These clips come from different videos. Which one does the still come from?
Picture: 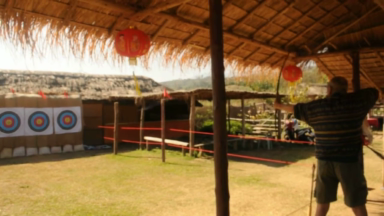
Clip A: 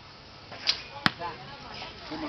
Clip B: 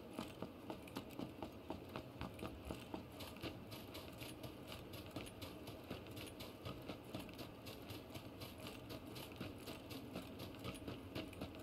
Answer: A